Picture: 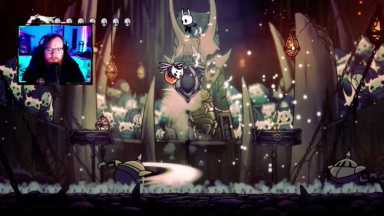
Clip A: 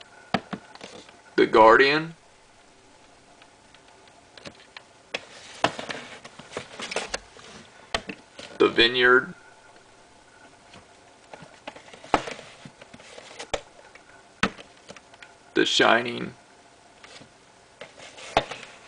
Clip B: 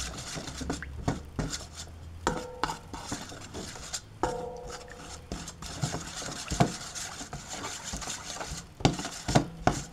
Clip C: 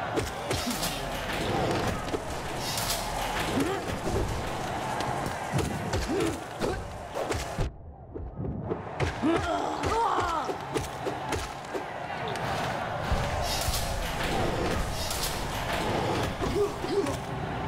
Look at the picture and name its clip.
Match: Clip C